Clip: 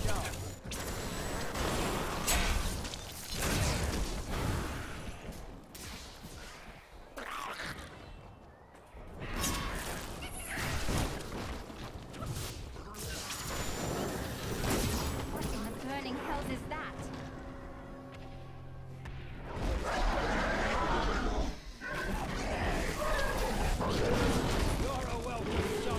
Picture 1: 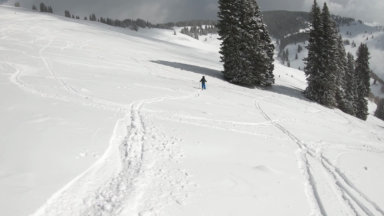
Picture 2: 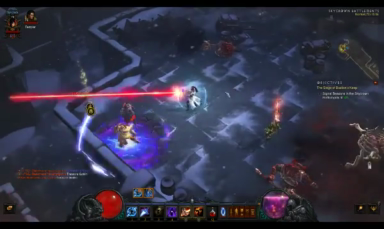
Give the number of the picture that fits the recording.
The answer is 2